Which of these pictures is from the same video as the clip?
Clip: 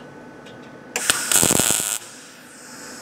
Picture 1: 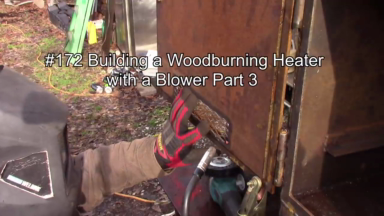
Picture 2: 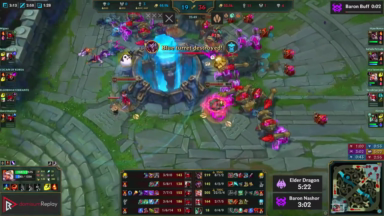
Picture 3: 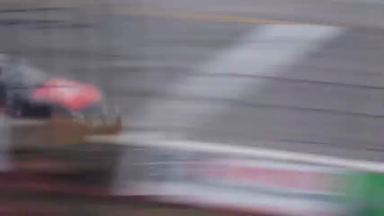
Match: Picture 1